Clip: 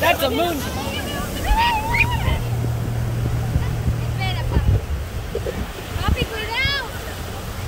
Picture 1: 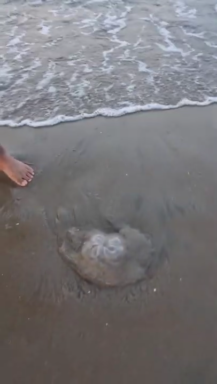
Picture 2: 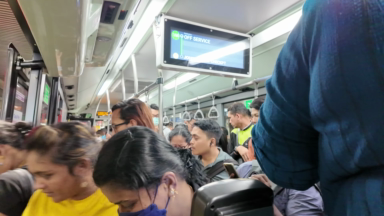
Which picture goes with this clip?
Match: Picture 1